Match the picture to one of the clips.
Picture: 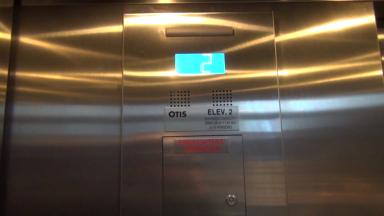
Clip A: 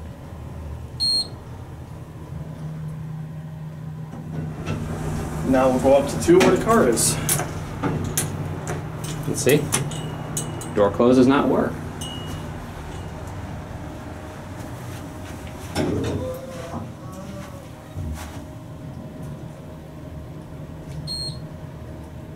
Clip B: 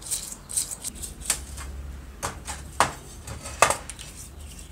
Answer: A